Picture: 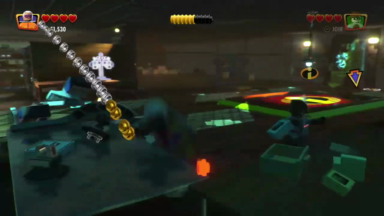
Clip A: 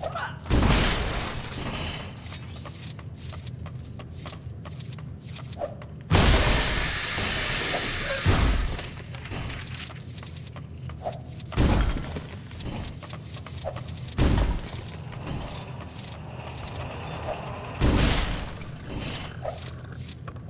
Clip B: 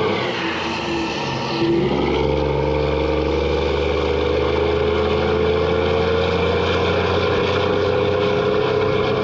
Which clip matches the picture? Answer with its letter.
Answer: A